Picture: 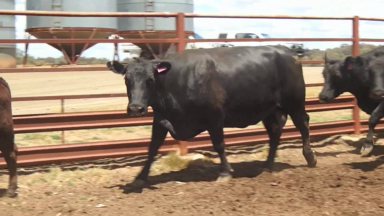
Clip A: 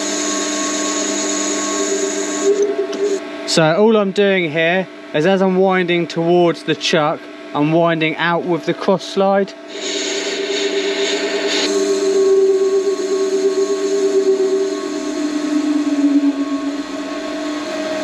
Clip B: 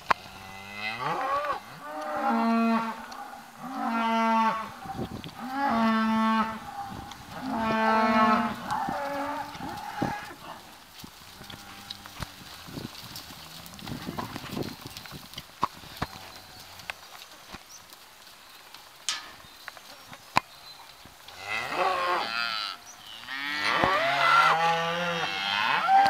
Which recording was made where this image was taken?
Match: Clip B